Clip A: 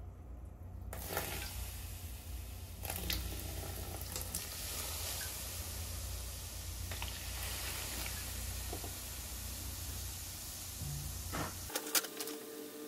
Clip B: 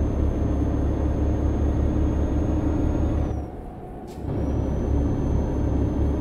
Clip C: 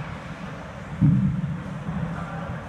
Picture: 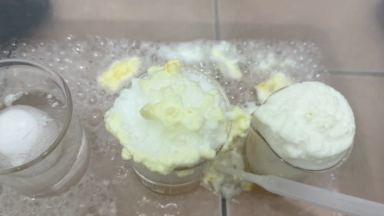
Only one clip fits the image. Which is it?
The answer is A